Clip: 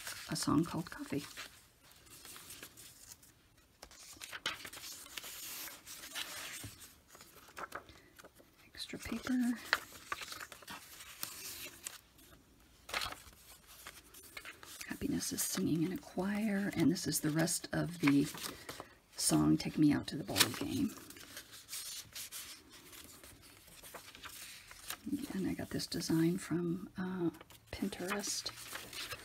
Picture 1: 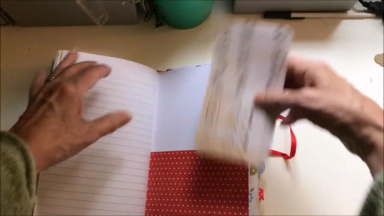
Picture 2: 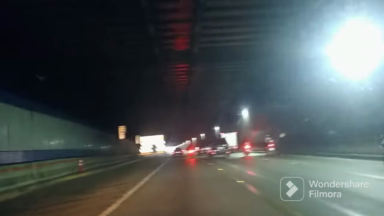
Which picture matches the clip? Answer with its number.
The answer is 1